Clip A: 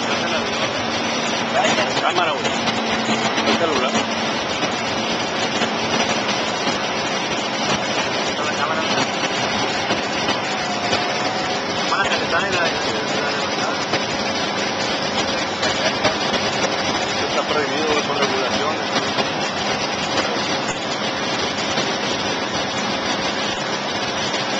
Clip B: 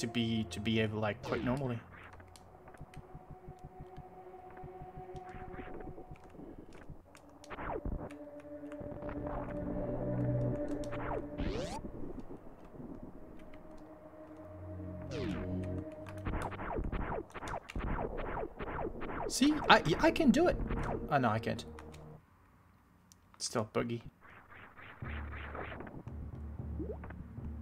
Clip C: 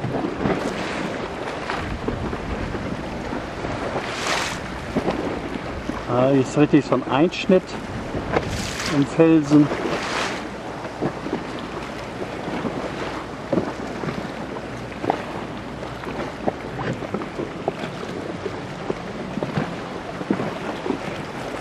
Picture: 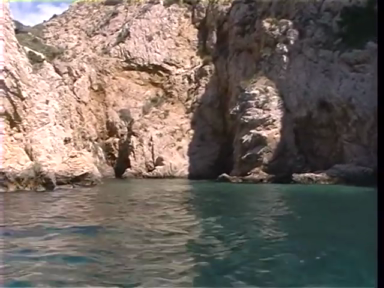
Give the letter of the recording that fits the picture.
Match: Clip C